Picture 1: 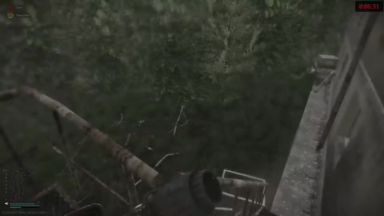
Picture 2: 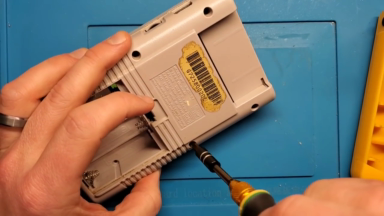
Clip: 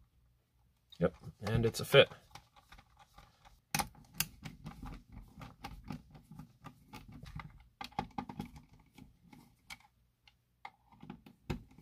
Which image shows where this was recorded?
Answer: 2